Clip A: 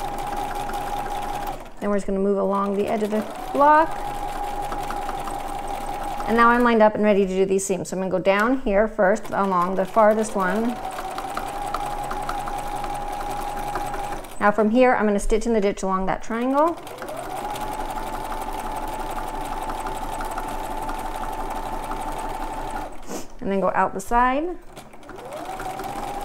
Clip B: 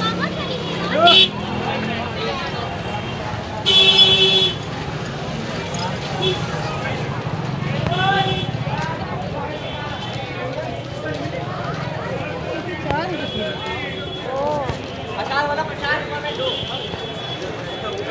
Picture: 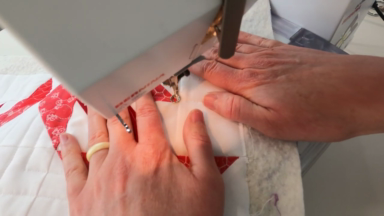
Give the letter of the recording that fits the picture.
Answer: A